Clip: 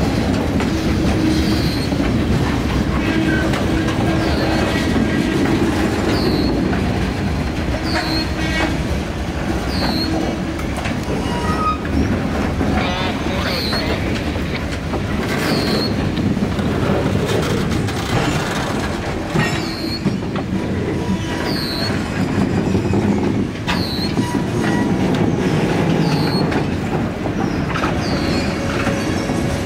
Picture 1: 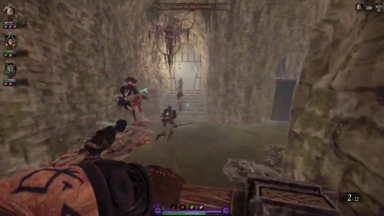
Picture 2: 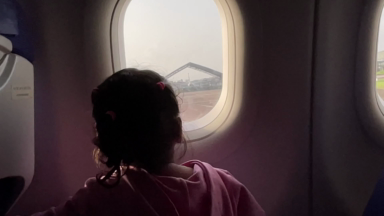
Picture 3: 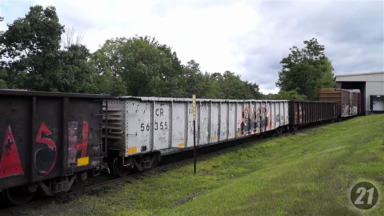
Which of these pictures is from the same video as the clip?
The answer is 3